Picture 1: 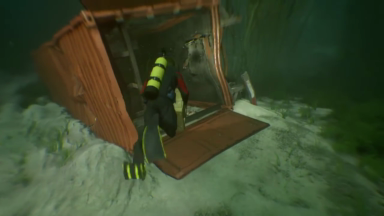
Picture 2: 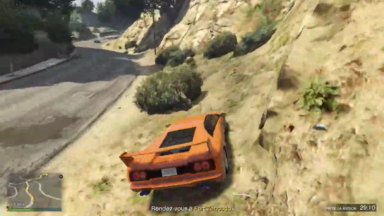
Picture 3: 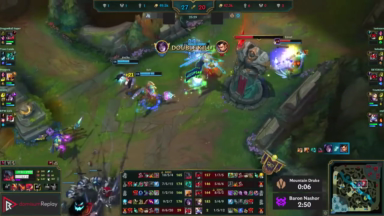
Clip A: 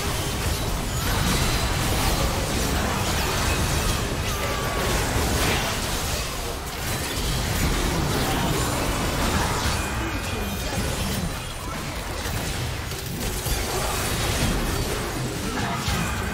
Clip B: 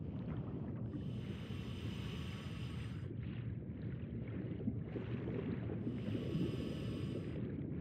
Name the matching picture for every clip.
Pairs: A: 3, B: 1